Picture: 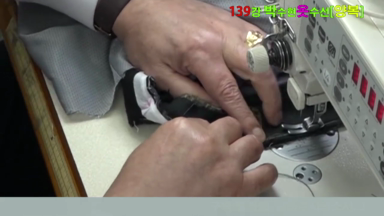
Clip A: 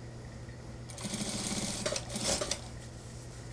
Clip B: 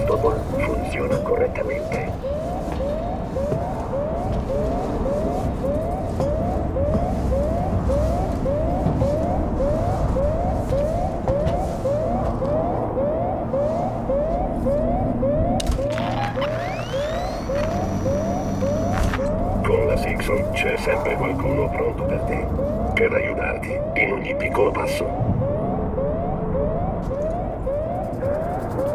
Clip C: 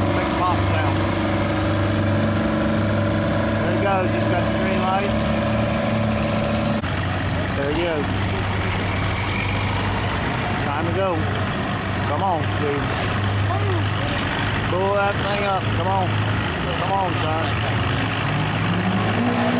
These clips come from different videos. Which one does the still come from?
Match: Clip A